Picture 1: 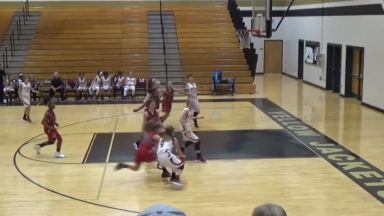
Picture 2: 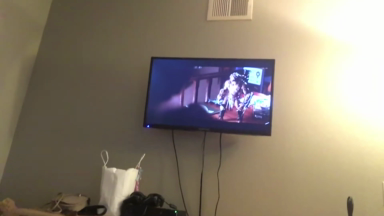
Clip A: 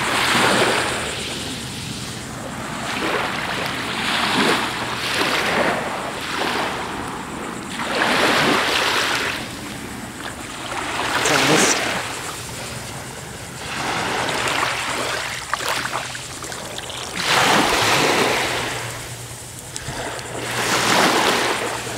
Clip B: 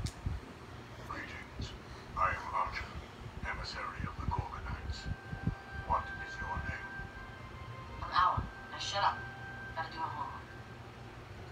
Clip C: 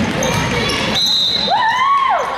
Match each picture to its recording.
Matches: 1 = C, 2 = B